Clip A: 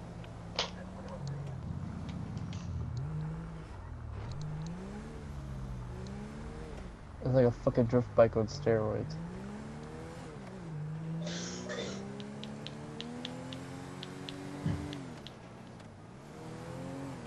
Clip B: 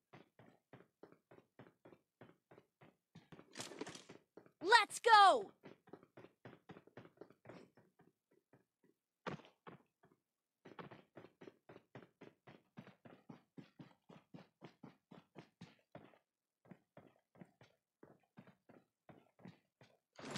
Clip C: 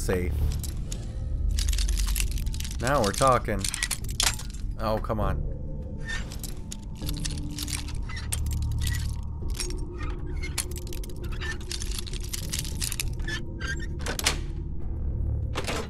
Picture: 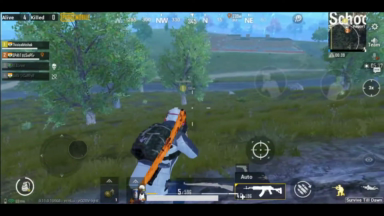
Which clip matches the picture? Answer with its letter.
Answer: B